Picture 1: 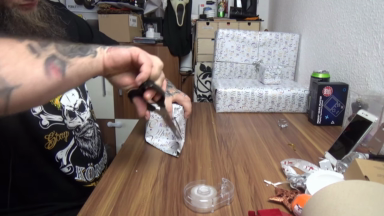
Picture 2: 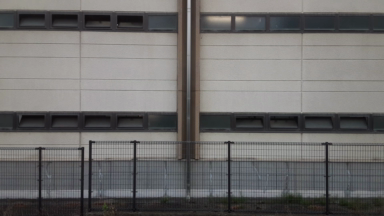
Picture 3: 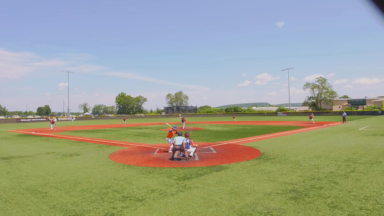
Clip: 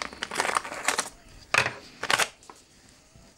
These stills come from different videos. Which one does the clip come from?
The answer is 1